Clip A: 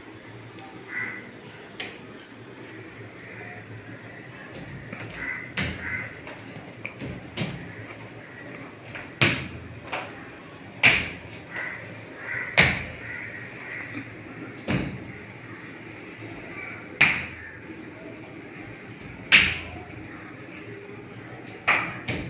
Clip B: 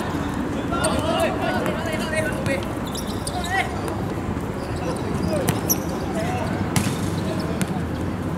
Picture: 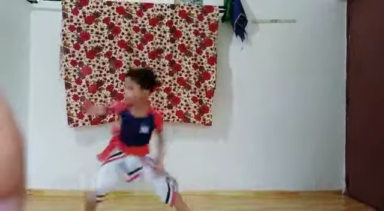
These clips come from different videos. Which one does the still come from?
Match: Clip A